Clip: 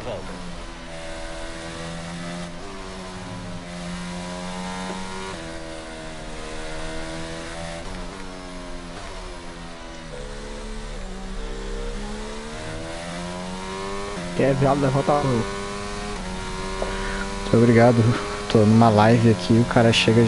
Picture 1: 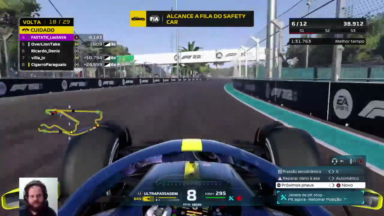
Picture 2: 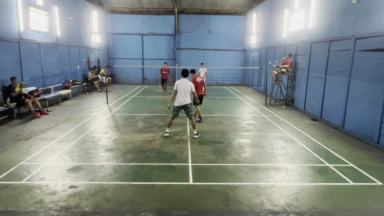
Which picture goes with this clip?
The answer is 1